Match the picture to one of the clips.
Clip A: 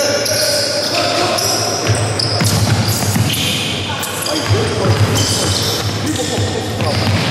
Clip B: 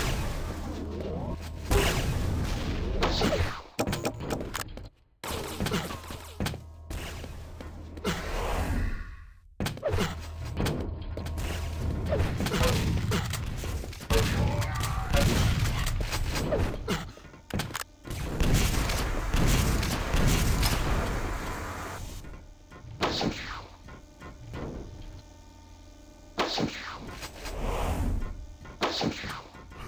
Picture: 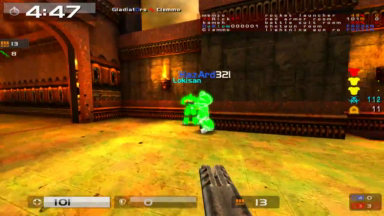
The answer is B